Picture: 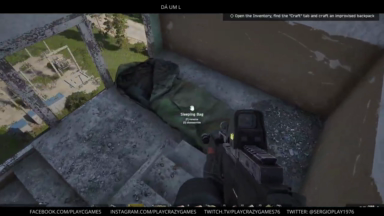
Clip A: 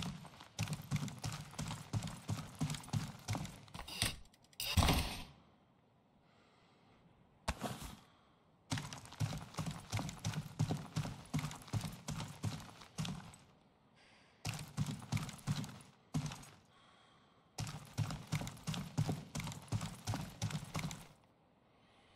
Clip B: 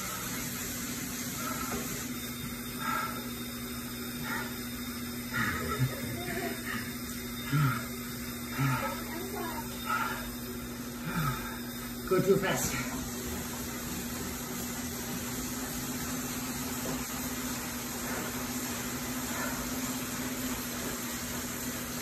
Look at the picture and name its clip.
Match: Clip A